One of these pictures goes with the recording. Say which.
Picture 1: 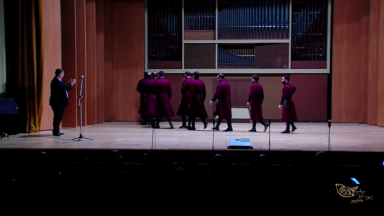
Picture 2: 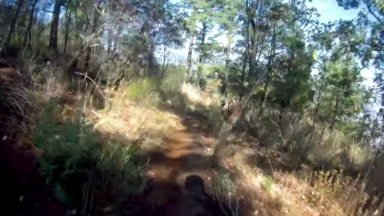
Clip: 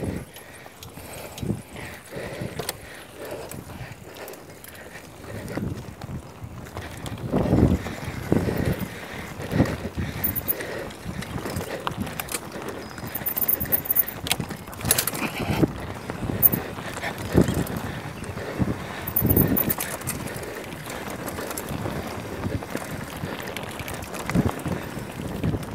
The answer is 2